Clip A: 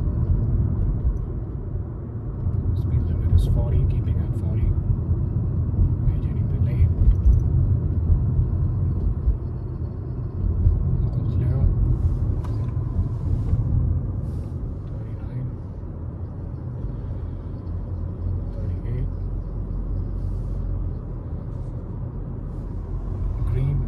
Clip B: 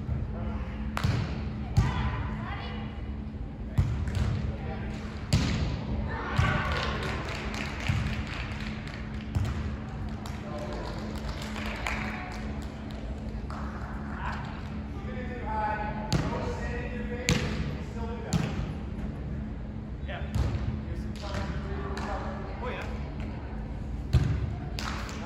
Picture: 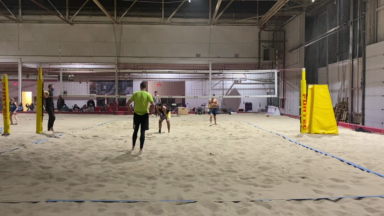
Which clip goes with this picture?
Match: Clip B